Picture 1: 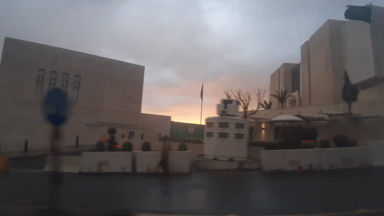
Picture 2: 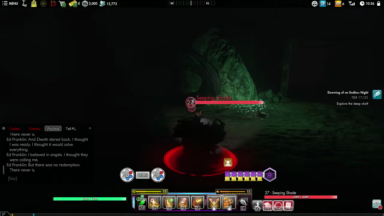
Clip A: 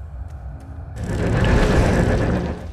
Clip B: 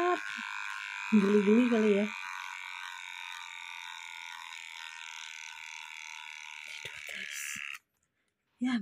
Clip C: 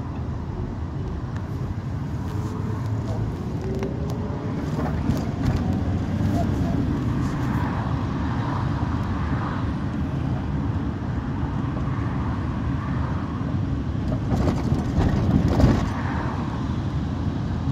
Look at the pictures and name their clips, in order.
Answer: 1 C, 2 A